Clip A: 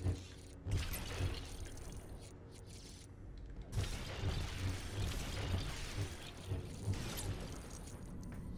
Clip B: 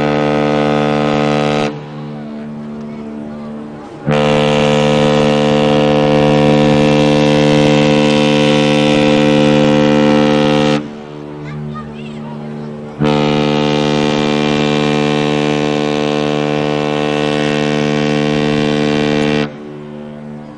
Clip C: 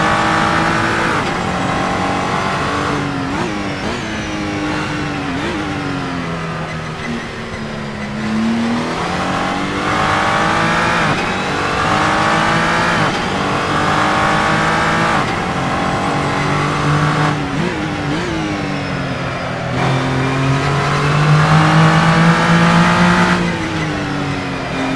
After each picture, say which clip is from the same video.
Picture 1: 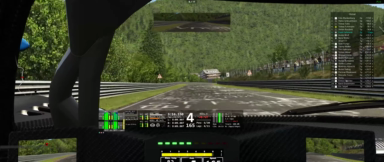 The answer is C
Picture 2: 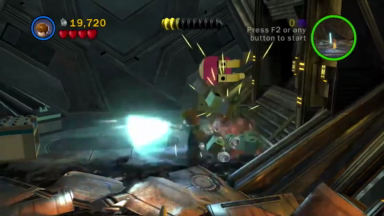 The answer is A